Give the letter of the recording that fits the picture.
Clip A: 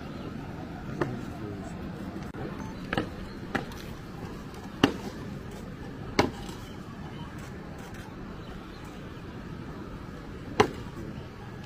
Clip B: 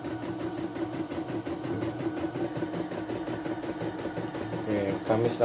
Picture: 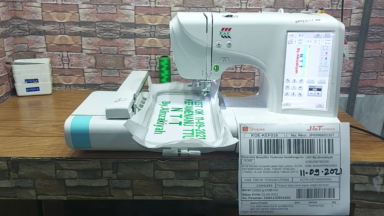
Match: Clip B